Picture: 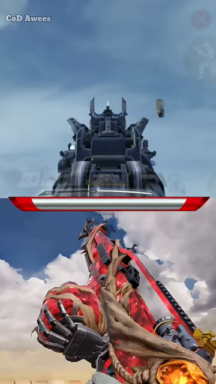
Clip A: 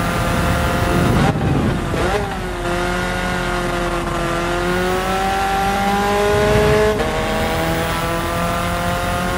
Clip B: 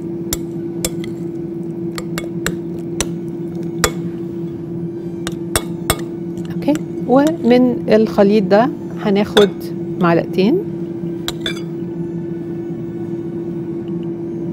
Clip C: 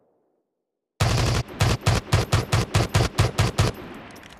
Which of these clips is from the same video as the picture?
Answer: C